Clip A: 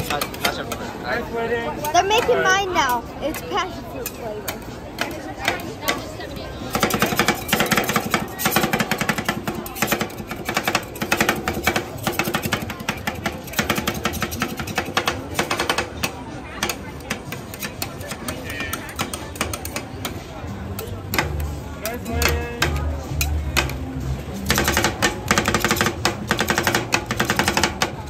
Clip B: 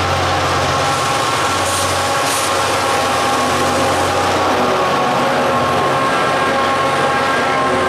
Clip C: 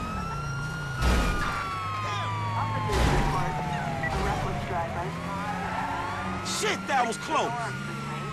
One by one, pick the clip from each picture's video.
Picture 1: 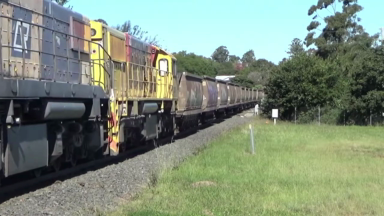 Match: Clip B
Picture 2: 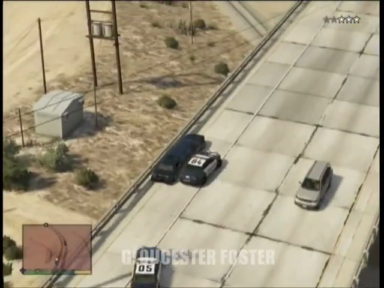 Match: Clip C